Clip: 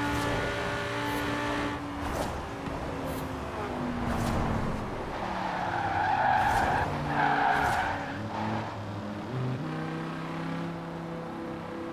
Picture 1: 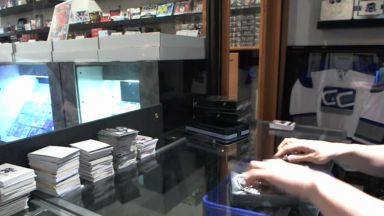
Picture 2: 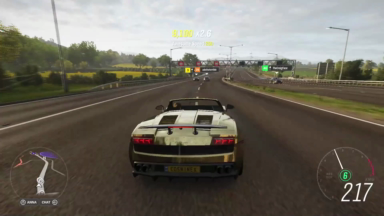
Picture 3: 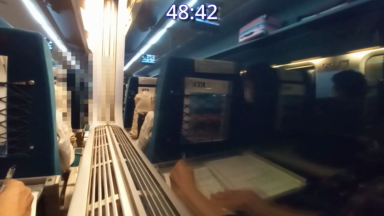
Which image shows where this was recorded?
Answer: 2